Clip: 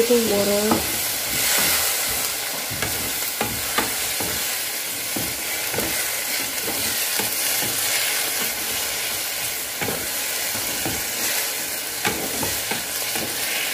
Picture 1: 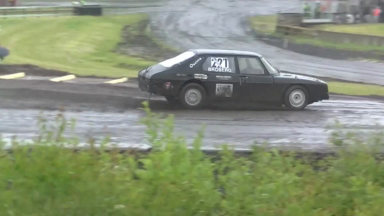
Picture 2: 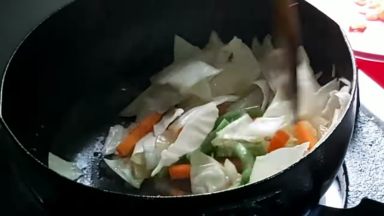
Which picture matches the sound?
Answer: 2